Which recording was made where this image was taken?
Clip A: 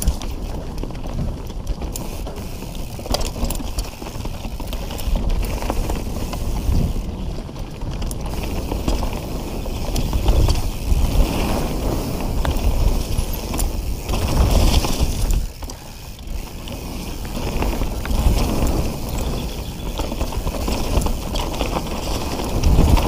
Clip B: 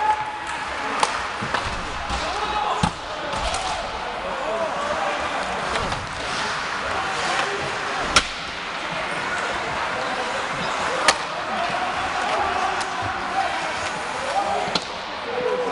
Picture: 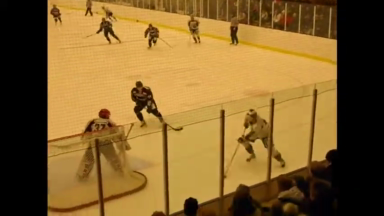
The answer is B